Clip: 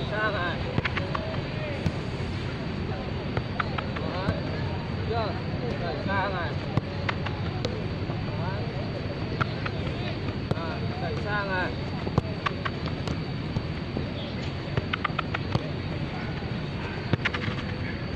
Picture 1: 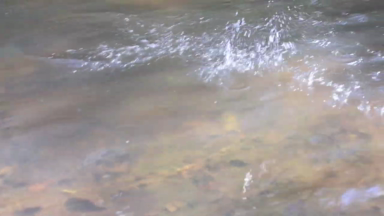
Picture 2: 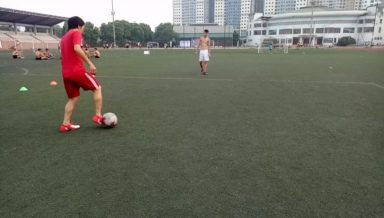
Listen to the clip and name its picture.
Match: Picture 2